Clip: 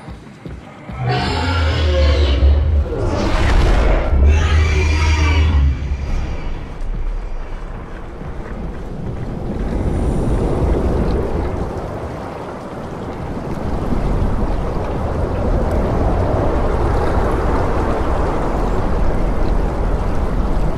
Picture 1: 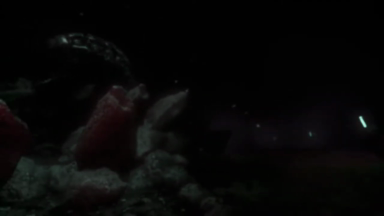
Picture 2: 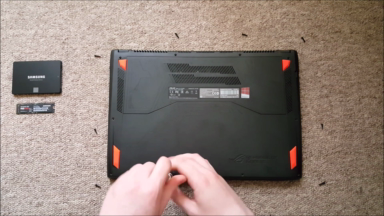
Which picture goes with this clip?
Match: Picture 1